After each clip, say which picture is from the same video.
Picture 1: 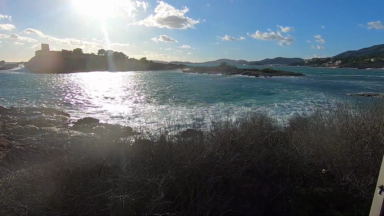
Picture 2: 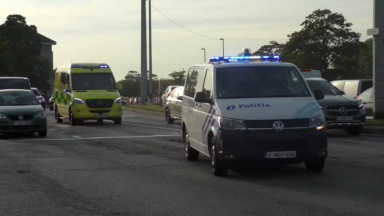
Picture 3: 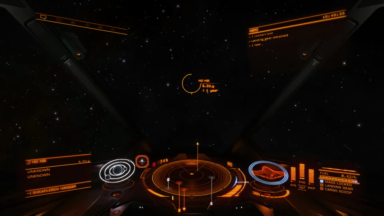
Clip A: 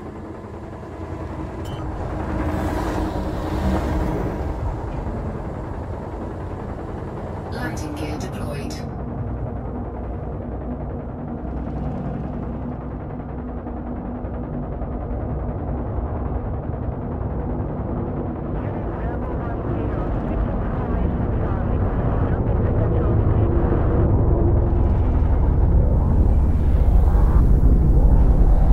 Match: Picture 3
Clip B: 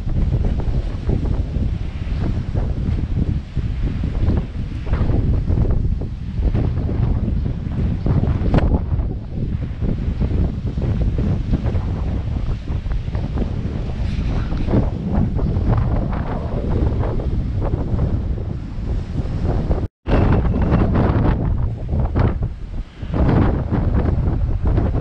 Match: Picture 1